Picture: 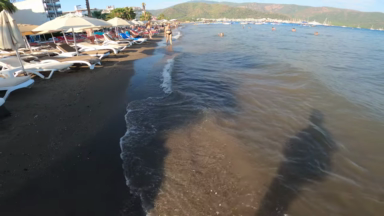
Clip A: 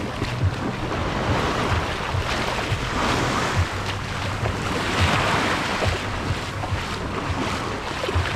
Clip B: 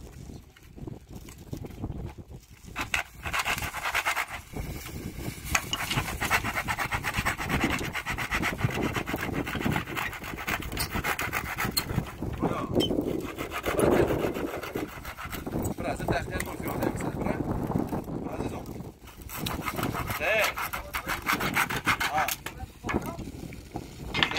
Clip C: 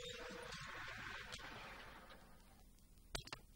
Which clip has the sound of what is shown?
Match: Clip A